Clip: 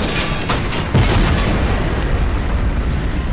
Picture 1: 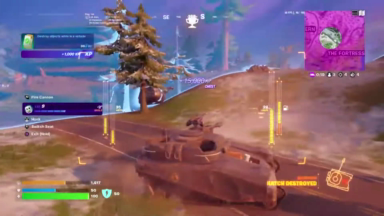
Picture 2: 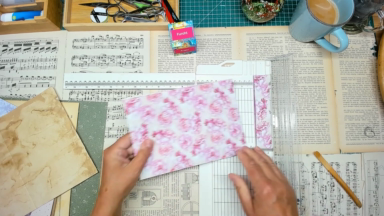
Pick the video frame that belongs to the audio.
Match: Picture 1